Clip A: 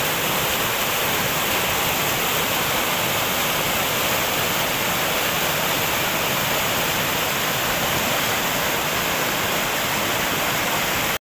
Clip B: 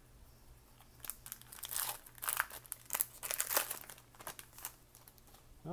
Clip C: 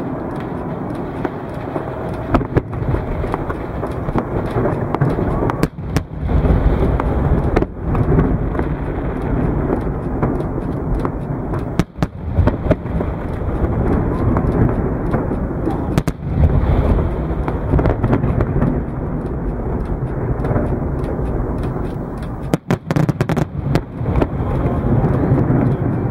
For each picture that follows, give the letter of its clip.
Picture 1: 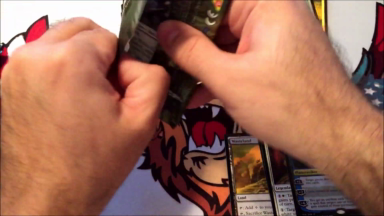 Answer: B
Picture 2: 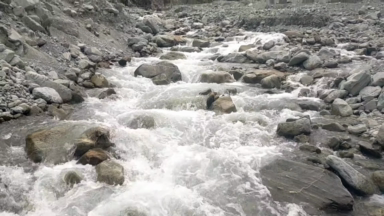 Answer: A